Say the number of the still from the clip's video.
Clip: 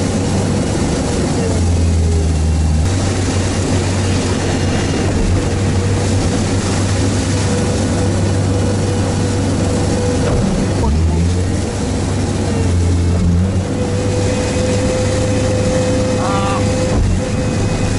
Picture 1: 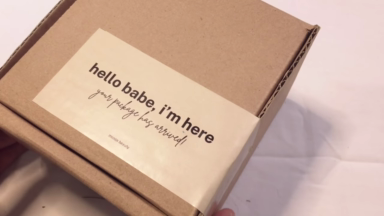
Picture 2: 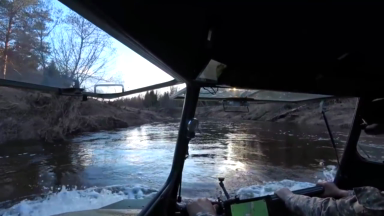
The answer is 2